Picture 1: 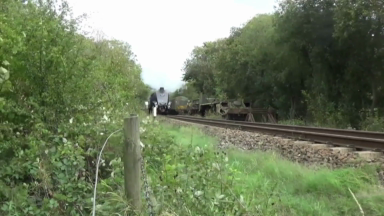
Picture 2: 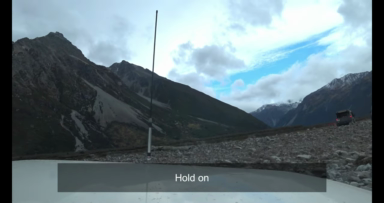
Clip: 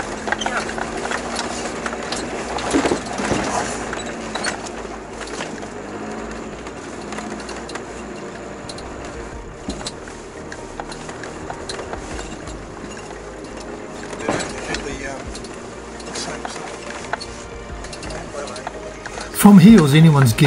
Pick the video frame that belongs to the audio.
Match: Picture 2